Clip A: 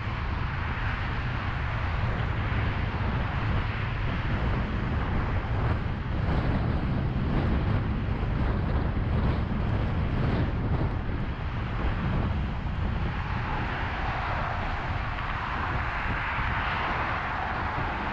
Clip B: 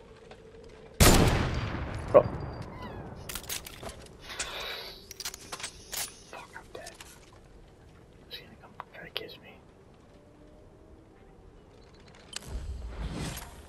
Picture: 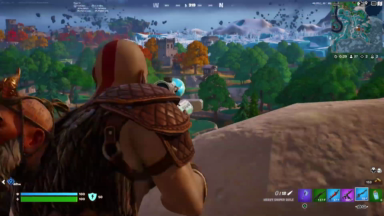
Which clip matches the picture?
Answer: B